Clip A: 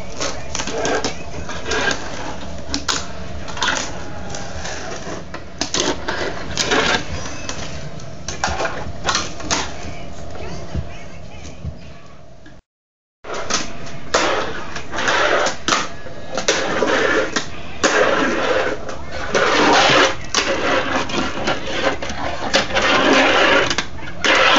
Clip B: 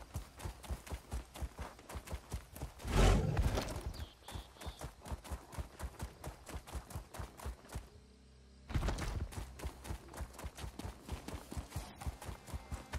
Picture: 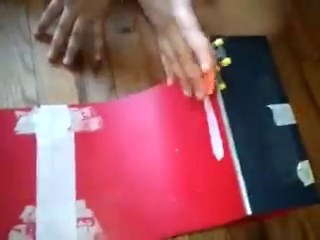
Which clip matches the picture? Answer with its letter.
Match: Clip A